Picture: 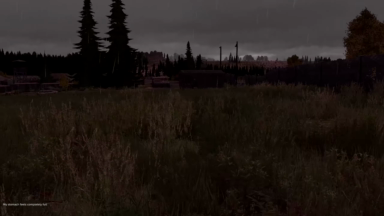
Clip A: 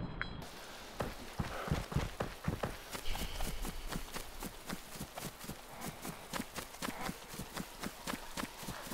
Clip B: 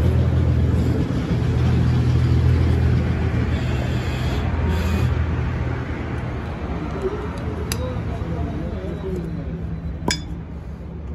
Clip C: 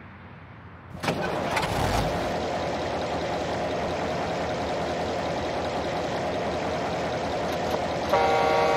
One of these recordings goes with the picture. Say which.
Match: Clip A